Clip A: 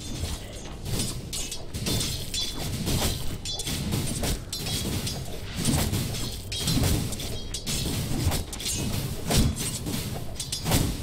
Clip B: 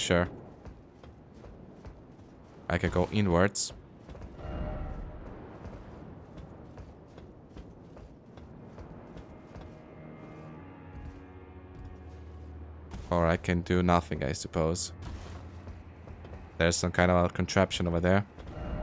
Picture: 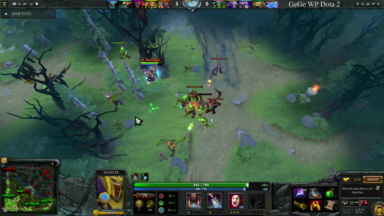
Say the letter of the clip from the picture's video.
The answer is A